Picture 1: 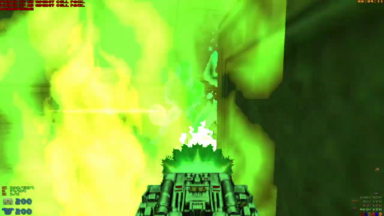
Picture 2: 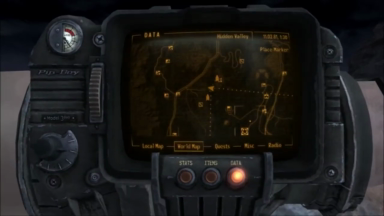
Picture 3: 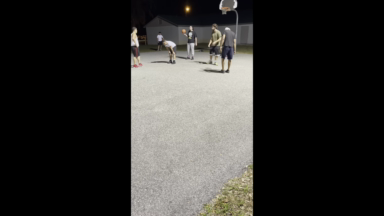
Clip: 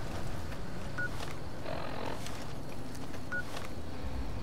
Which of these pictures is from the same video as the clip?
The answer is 2